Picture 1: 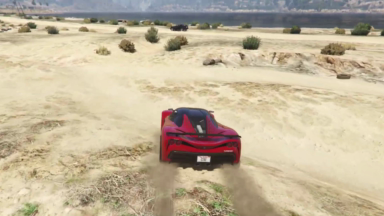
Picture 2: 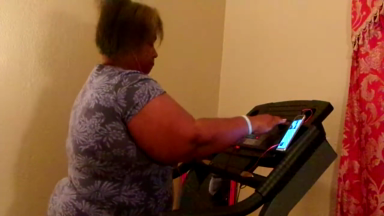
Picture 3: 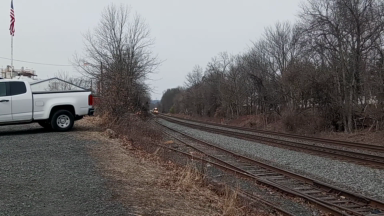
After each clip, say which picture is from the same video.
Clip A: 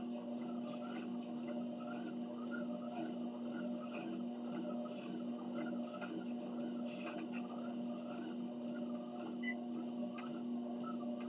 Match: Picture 2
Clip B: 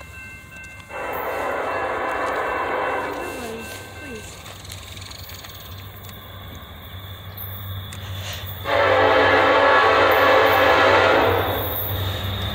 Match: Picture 3